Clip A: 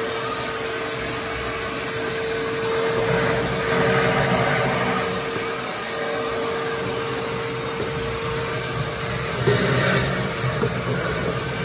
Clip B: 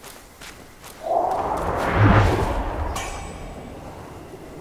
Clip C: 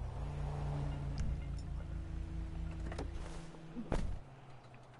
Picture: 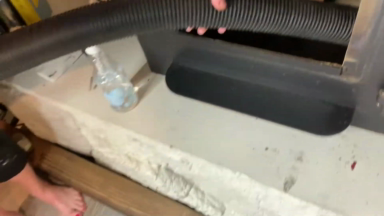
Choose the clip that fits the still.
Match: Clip A